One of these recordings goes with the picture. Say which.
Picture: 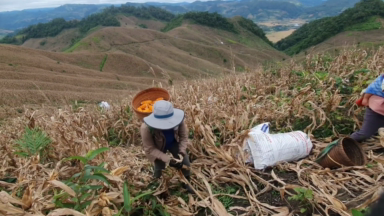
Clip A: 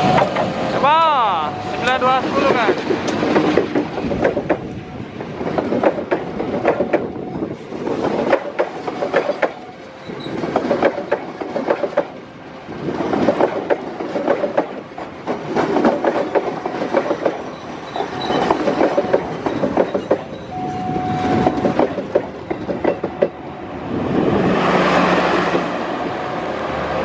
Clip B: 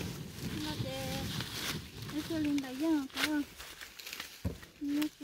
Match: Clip B